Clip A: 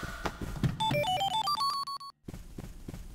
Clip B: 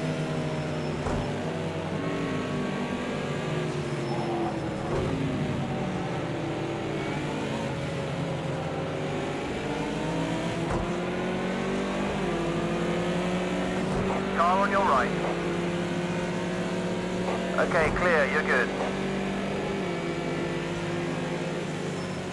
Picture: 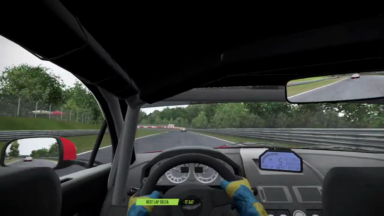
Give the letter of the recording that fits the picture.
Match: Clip B